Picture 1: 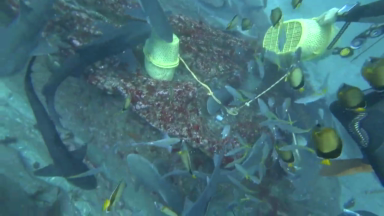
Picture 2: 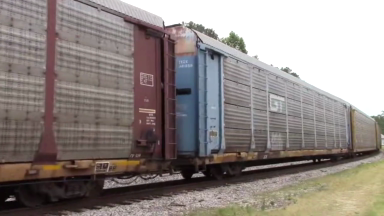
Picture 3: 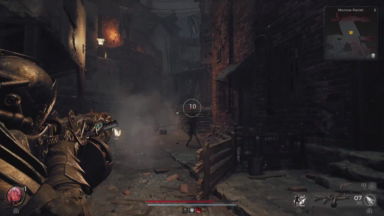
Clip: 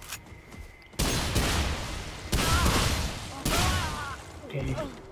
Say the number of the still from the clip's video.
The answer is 3